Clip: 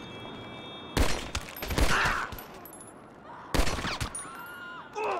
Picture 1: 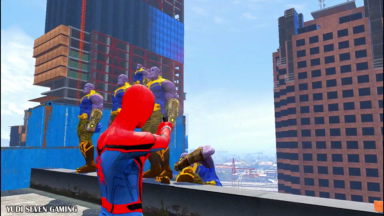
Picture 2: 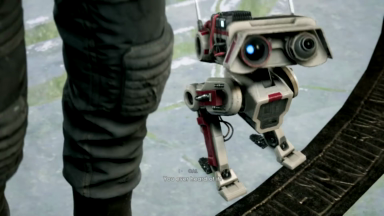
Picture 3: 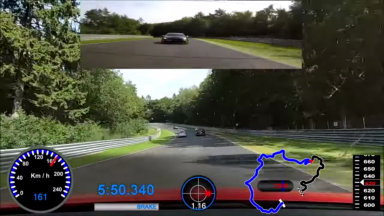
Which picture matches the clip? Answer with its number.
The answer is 1